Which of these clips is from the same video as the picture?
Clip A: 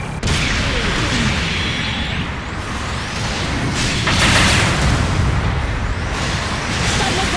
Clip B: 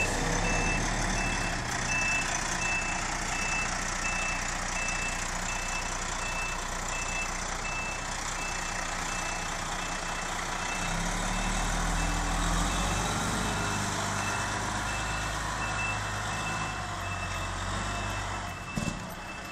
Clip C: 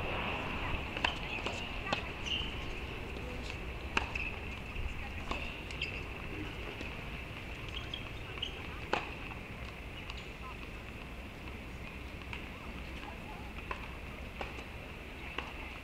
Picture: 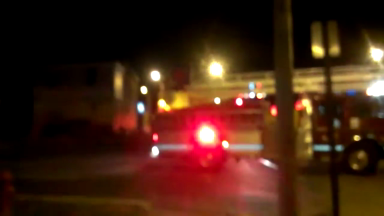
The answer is B